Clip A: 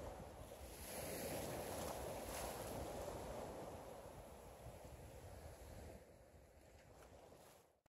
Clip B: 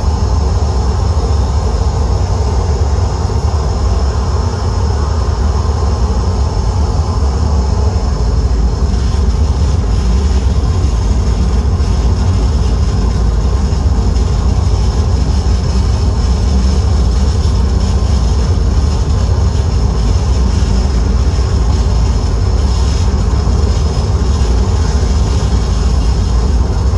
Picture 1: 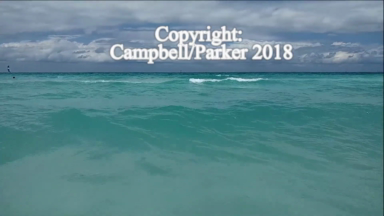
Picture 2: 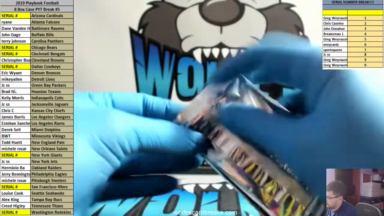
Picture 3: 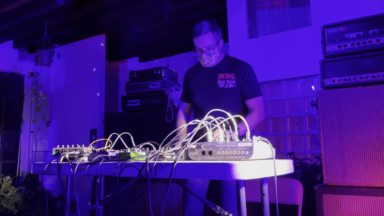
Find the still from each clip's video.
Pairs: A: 1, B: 3